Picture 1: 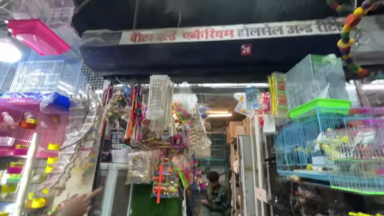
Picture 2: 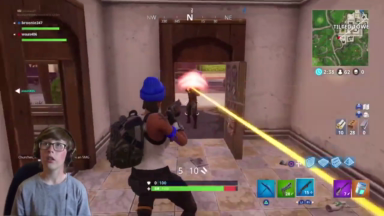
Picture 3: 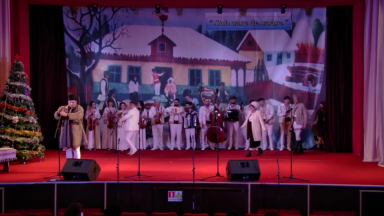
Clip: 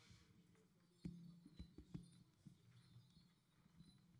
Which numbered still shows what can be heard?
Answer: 3